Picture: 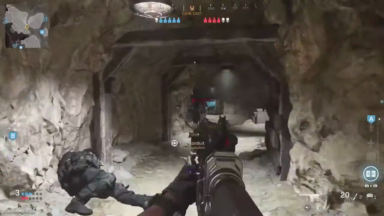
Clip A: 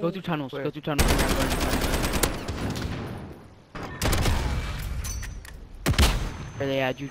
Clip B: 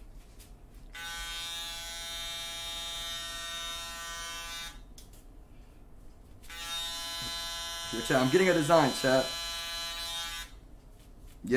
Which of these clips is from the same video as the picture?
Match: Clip A